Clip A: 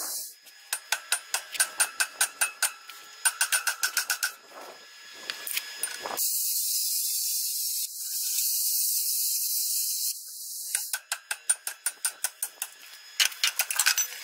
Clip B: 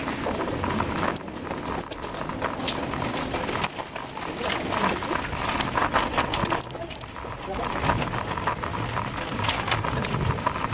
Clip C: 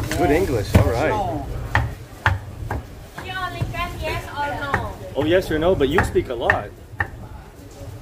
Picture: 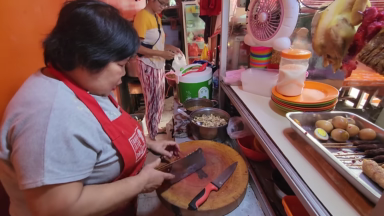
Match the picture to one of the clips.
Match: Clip C